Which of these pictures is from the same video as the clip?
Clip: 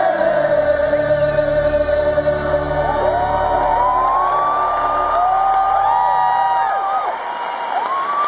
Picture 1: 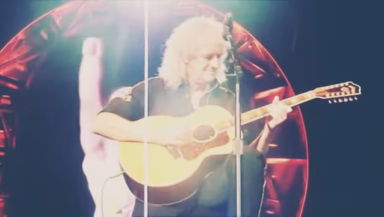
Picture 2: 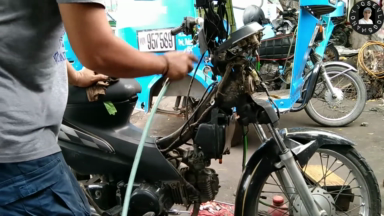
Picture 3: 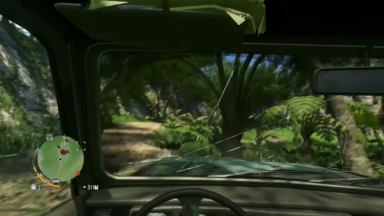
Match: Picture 1